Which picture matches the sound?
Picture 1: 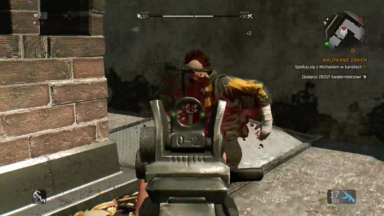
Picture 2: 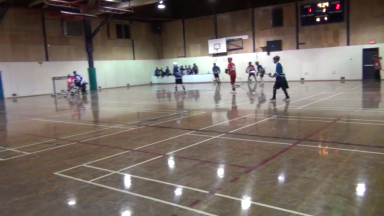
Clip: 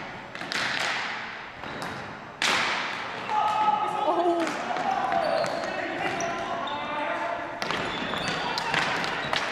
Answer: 2